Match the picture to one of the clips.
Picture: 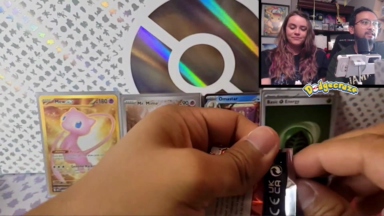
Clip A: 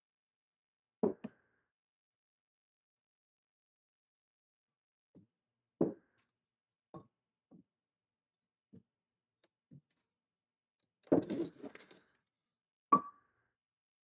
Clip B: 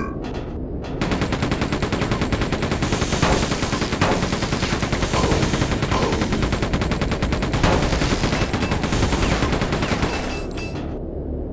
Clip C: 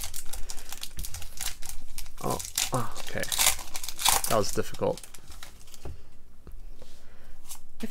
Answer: C